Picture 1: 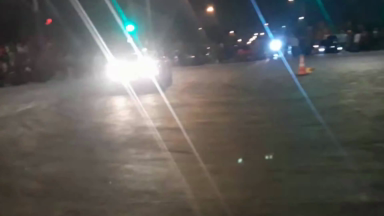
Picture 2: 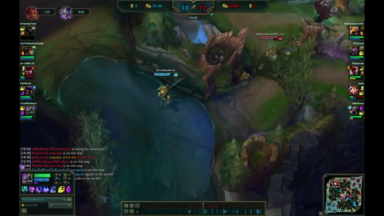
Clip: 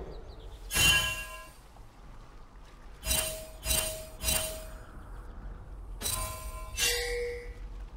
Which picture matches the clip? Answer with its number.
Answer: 2